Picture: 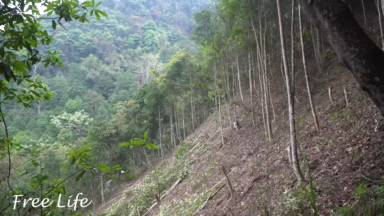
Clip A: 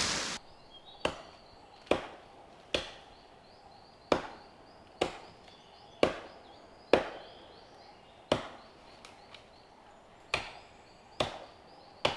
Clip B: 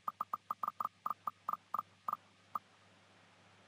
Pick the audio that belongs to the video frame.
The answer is A